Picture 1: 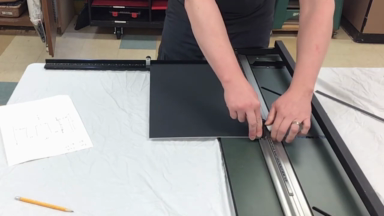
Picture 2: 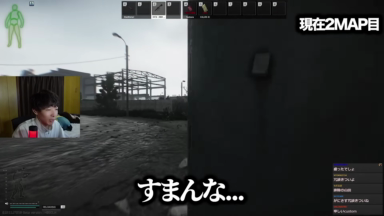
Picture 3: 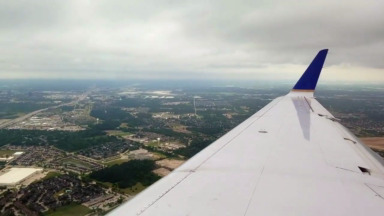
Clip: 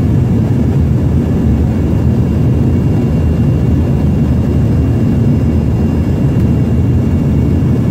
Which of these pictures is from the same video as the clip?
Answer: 3